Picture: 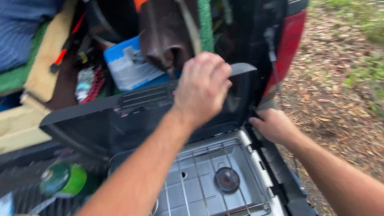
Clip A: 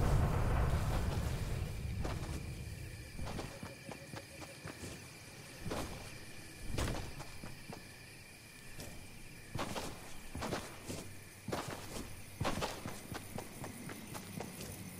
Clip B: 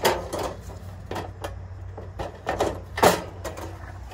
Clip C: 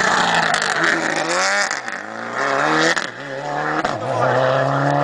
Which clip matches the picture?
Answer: B